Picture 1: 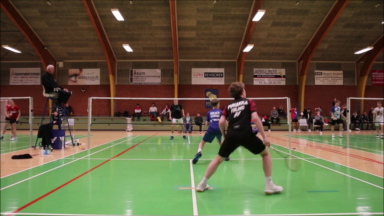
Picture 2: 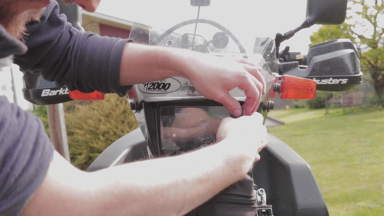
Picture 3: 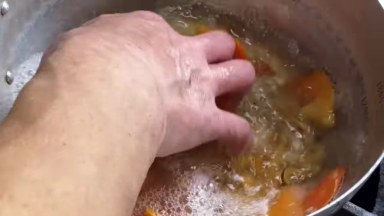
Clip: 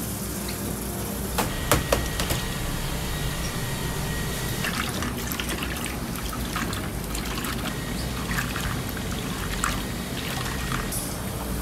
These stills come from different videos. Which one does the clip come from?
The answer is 3